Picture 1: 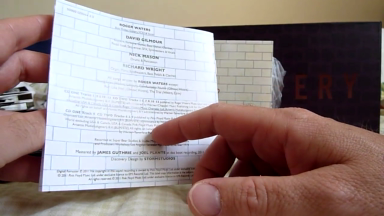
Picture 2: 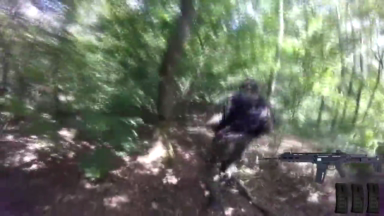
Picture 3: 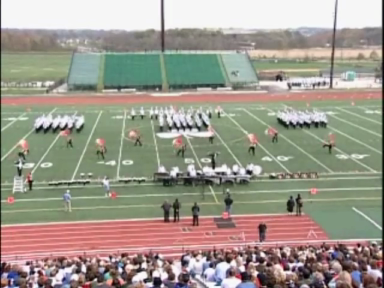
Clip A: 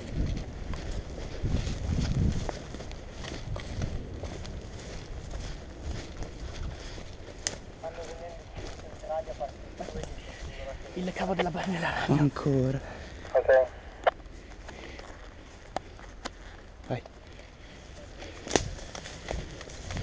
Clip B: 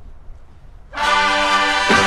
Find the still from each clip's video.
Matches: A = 2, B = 3